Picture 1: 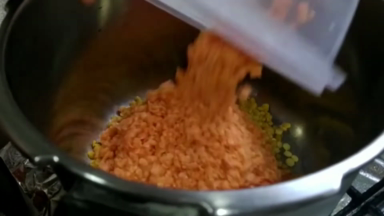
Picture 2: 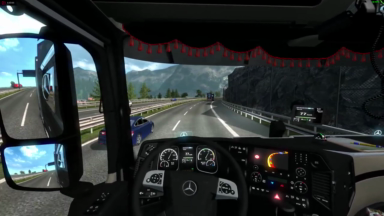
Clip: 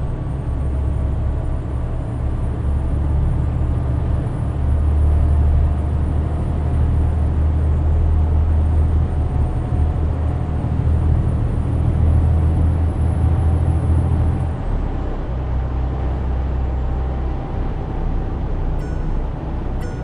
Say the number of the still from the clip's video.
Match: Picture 2